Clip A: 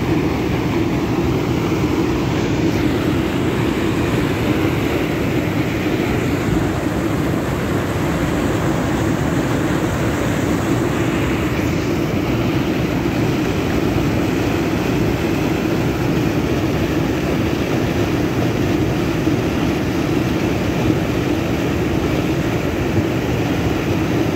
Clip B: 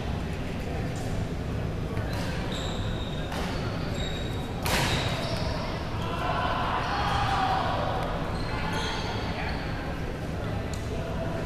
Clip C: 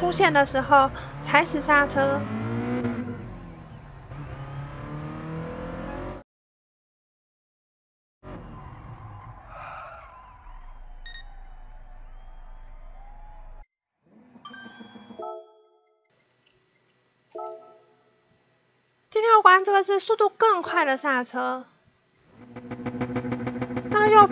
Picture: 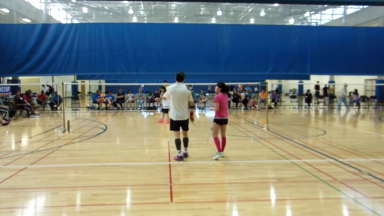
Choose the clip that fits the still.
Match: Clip B